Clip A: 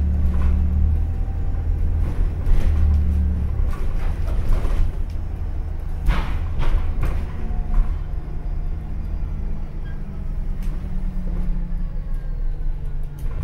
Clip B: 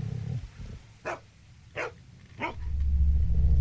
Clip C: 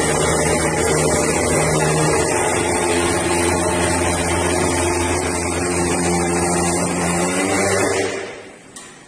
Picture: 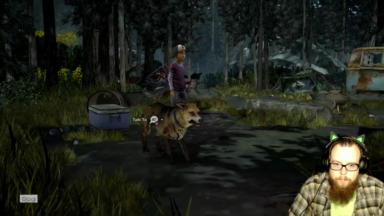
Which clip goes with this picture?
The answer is B